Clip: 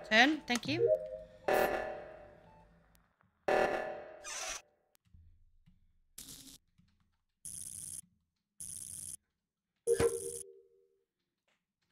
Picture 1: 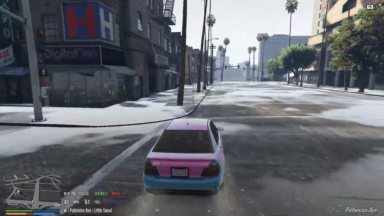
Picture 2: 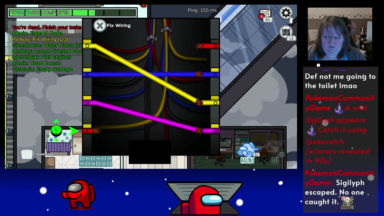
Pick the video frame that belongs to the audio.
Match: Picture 2